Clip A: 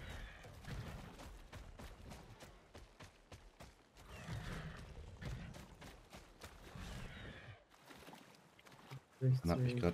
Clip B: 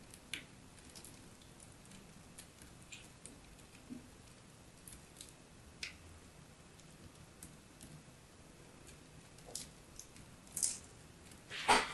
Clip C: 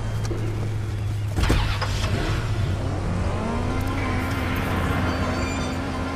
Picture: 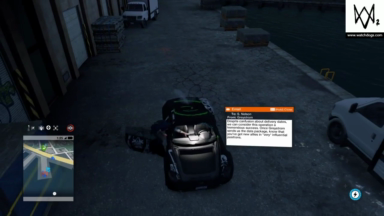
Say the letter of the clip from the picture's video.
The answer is C